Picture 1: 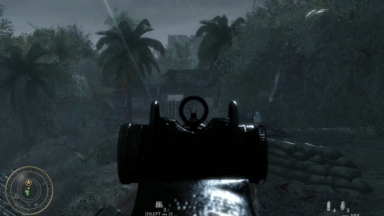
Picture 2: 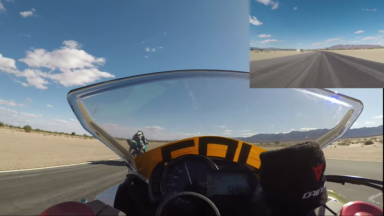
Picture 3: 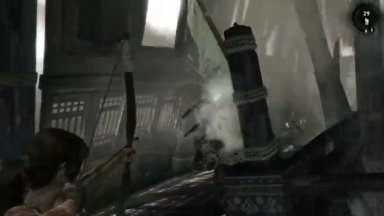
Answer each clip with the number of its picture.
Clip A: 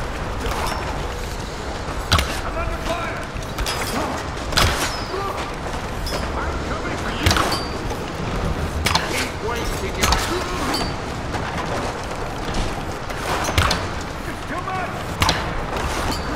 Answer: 3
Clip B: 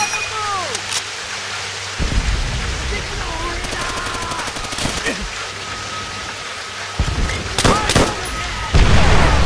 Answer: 1